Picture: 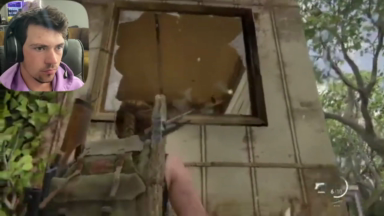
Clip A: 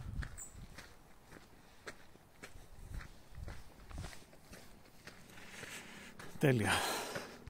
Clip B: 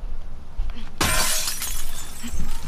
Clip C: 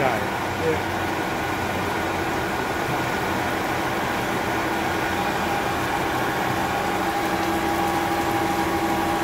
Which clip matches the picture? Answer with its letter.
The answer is B